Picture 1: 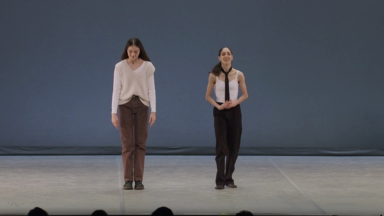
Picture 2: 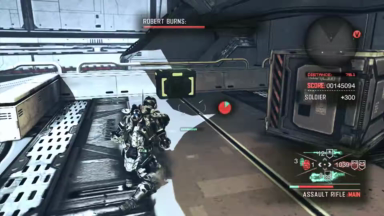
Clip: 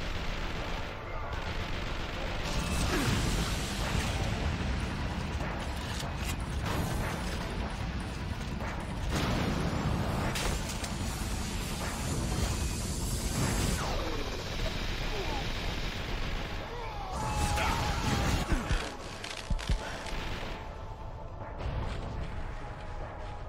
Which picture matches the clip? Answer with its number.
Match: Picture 2